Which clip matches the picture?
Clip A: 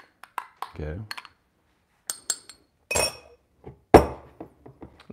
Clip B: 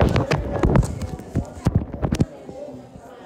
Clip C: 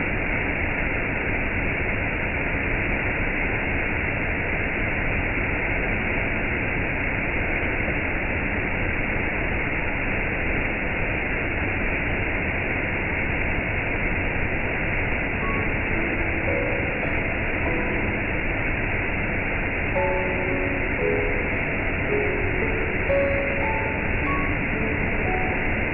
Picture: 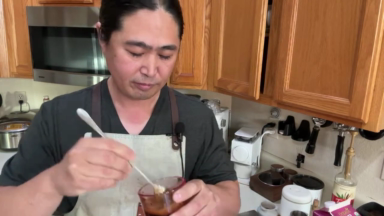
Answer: A